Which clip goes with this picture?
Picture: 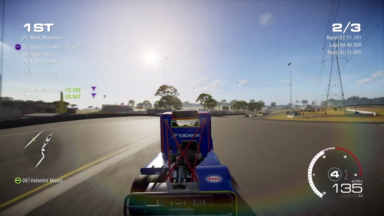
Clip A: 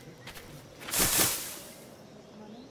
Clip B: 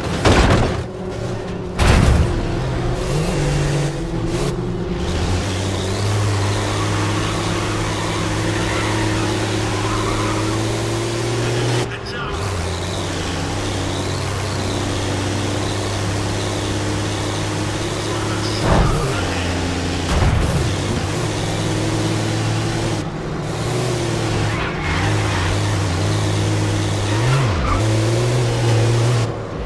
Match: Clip B